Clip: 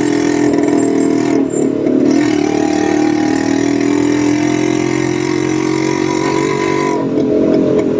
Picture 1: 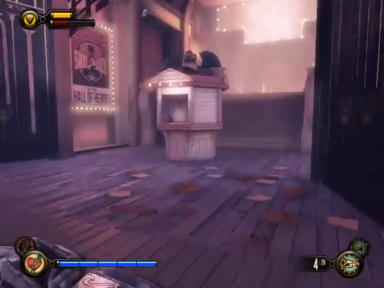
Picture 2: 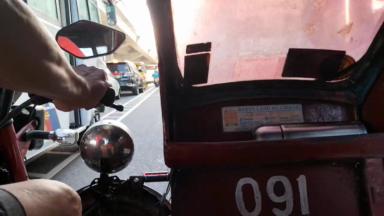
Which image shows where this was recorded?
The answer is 2